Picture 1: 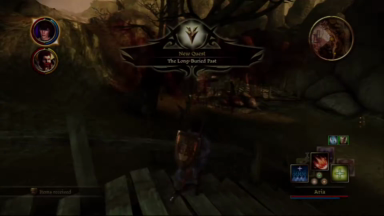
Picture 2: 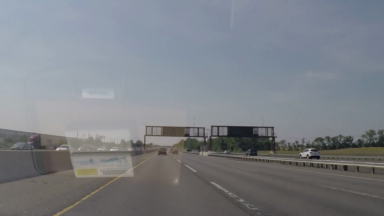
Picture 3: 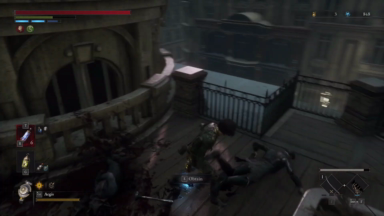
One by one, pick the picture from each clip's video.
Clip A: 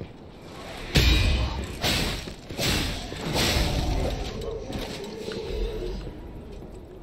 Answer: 3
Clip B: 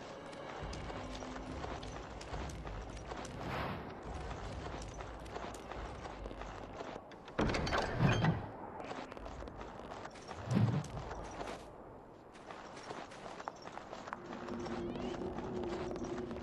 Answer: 1